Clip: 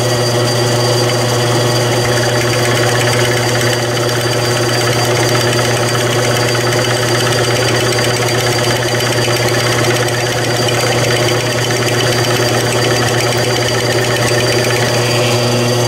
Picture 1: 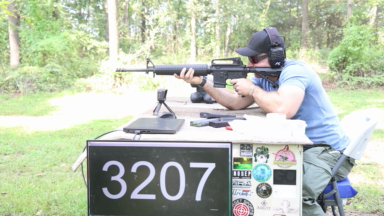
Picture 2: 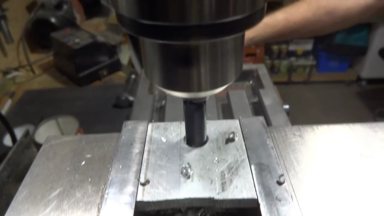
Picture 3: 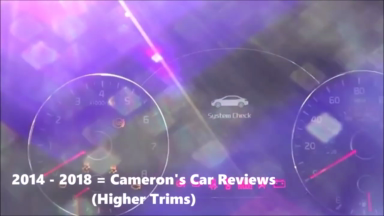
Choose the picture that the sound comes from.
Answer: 2